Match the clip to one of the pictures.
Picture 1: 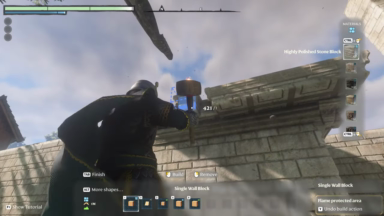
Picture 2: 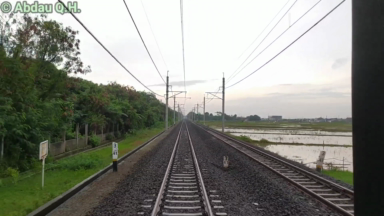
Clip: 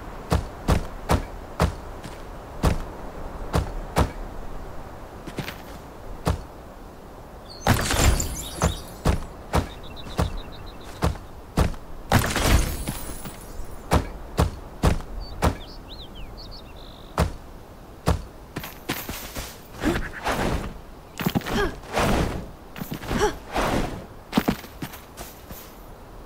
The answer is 1